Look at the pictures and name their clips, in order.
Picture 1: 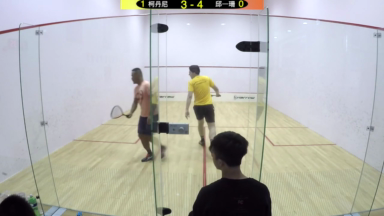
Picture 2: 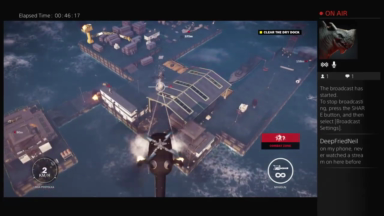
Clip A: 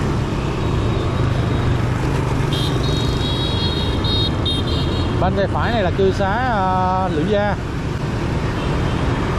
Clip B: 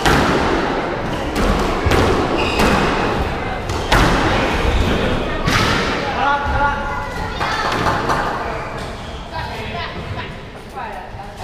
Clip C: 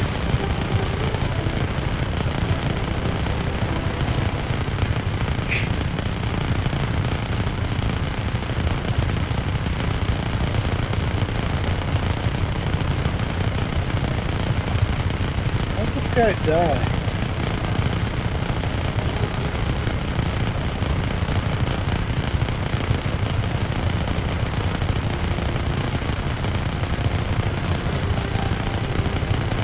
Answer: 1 B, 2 C